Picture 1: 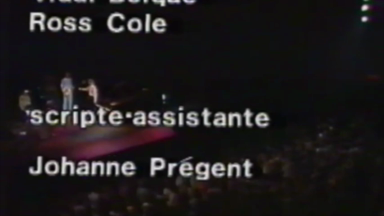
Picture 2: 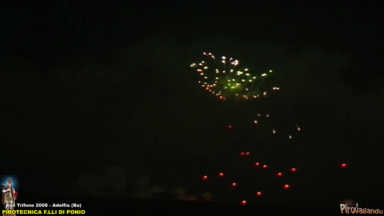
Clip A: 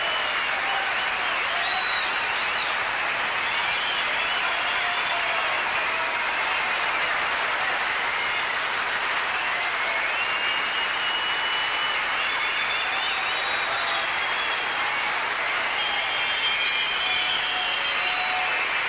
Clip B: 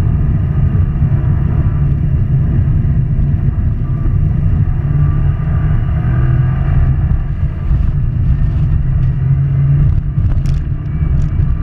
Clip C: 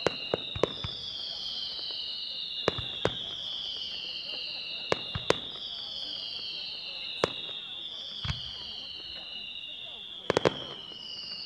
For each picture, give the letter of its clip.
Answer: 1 A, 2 C